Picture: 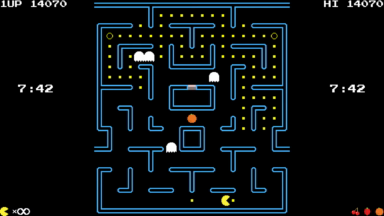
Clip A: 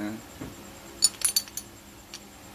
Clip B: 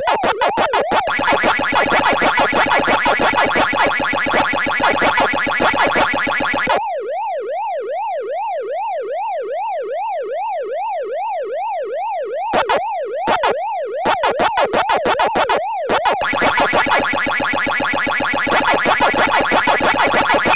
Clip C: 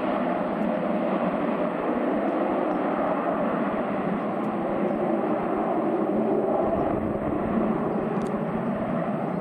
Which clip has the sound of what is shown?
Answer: B